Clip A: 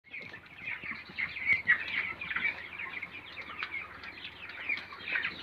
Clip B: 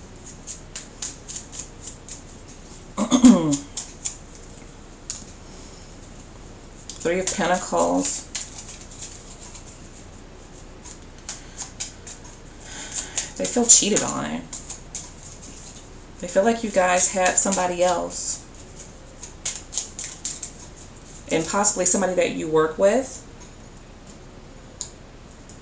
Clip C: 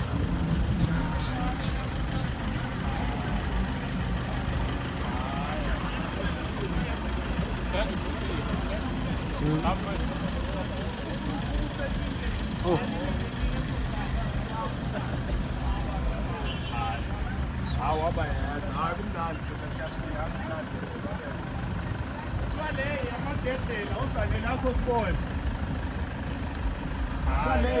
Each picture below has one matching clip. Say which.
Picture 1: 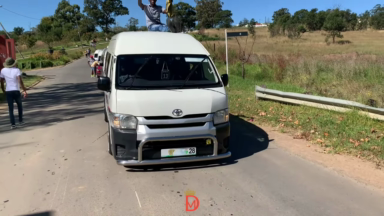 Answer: C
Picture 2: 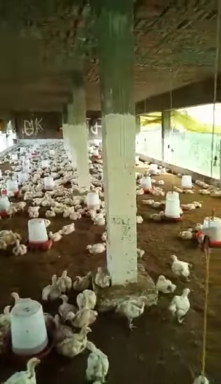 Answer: A